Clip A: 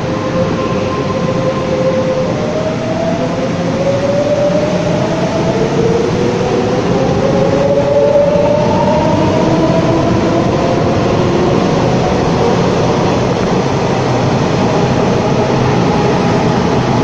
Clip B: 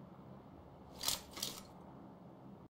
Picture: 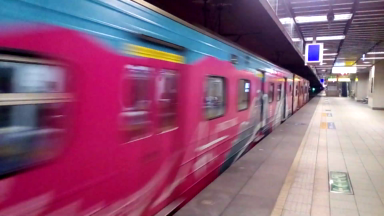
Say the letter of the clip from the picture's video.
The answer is A